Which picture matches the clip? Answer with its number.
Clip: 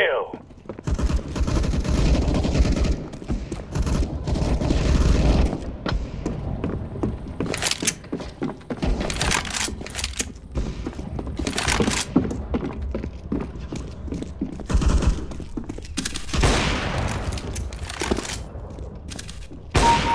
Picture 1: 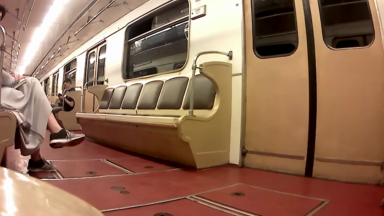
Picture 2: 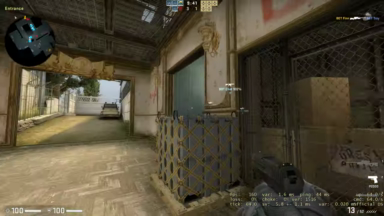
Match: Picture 2